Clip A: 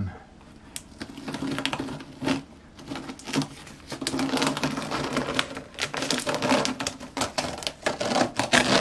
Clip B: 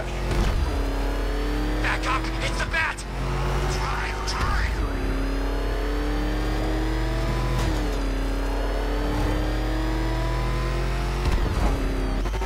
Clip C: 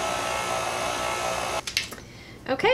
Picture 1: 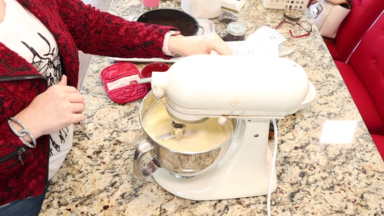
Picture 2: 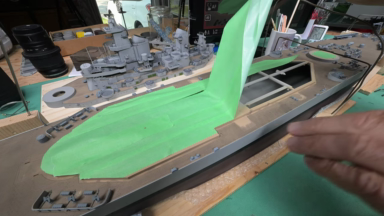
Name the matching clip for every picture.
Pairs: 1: C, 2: A